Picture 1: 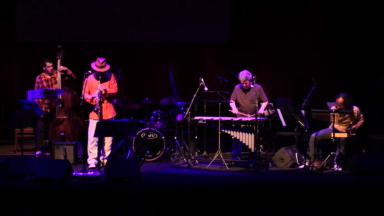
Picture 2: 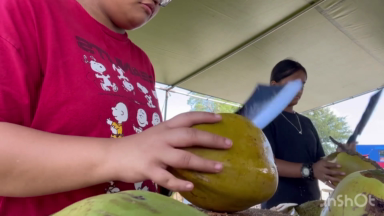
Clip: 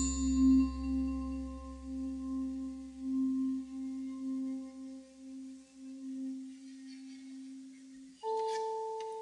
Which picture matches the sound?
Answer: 1